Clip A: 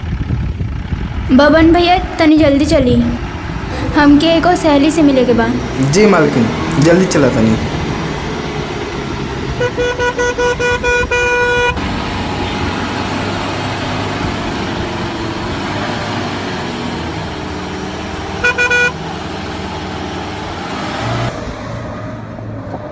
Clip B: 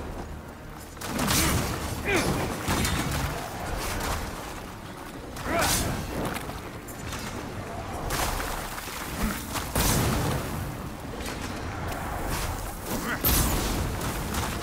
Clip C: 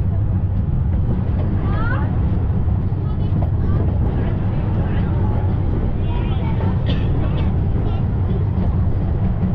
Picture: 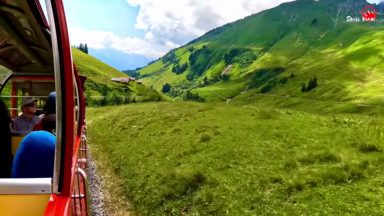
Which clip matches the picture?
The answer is C